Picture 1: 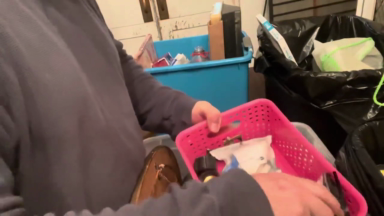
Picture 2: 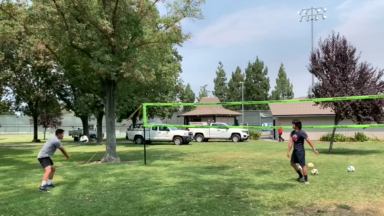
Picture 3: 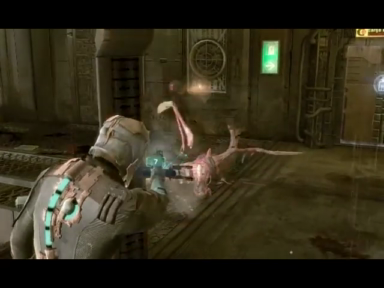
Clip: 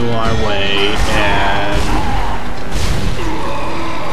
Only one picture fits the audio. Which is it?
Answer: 3